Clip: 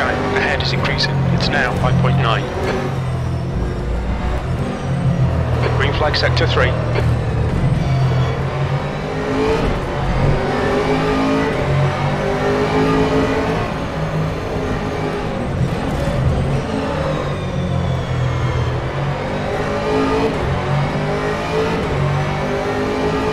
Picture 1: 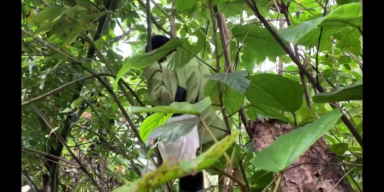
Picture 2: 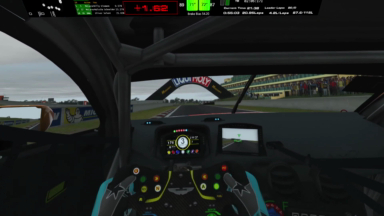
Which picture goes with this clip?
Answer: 2